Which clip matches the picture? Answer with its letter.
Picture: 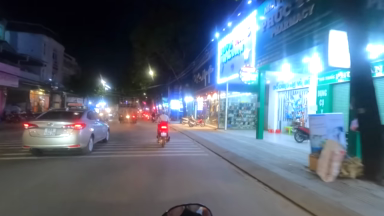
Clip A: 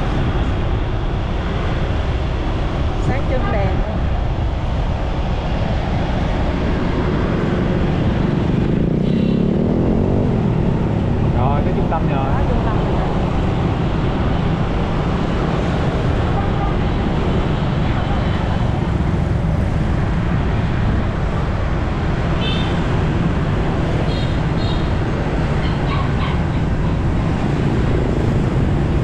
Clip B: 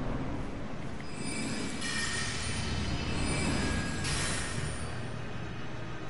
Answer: A